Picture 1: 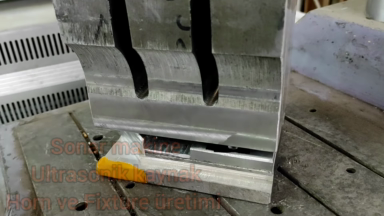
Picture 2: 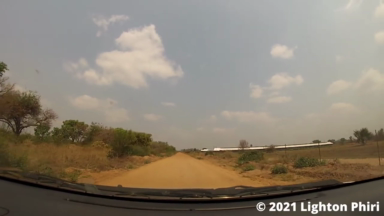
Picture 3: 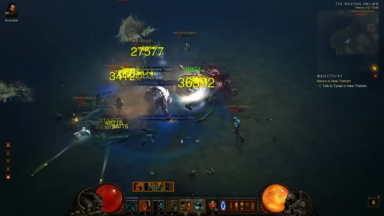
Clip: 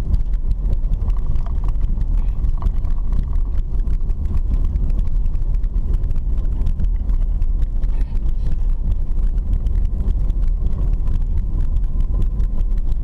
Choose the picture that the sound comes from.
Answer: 2